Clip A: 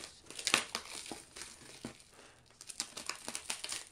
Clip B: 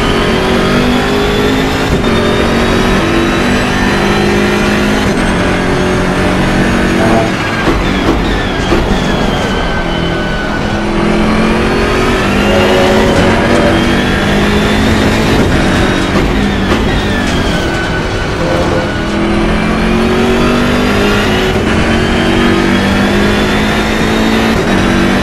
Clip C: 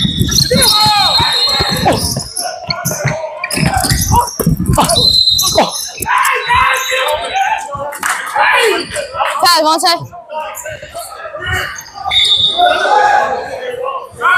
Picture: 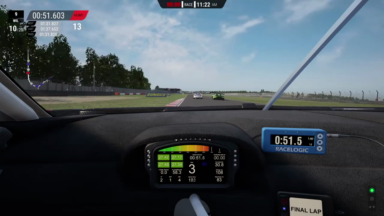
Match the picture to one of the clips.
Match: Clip B